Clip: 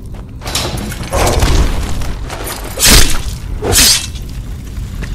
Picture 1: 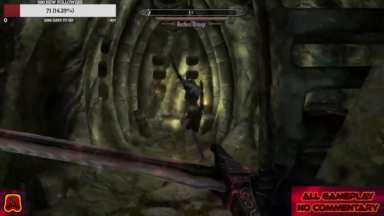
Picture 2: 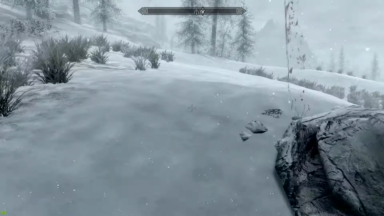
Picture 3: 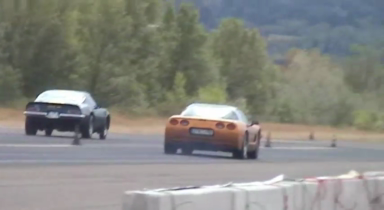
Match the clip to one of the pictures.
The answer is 1